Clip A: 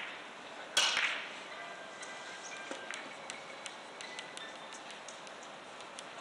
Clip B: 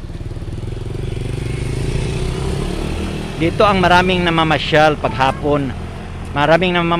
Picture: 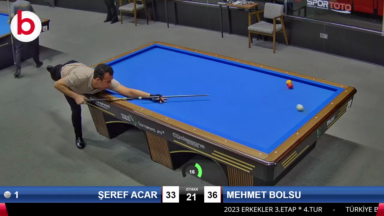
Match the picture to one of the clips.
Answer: A